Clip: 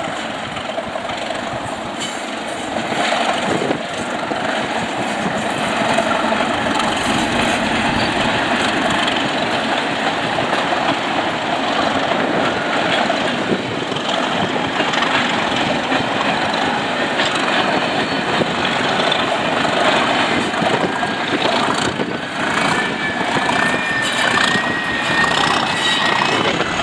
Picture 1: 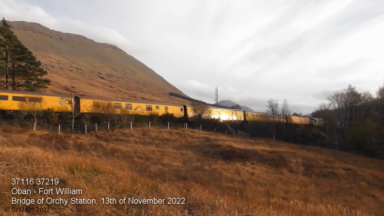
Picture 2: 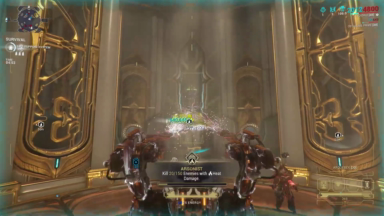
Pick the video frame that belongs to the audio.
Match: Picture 1